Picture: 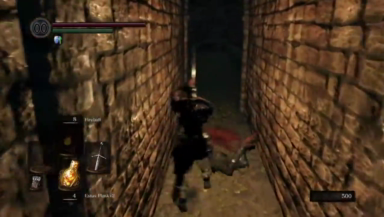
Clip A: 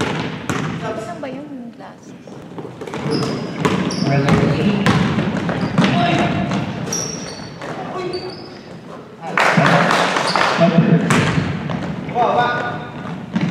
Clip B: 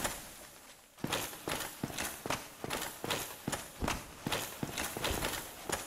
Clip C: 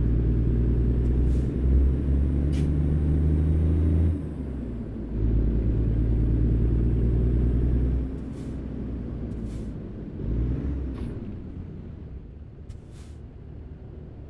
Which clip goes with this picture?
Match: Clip B